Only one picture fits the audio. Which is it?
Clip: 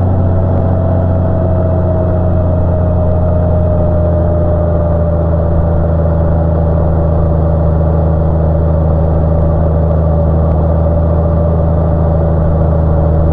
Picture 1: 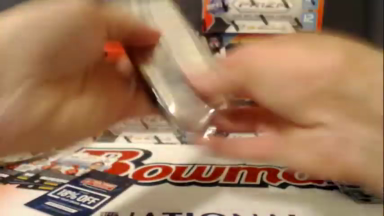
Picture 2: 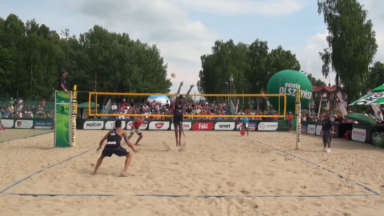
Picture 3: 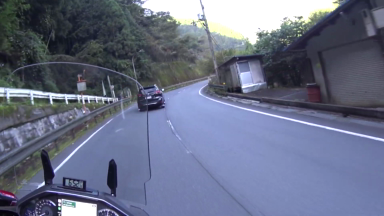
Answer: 3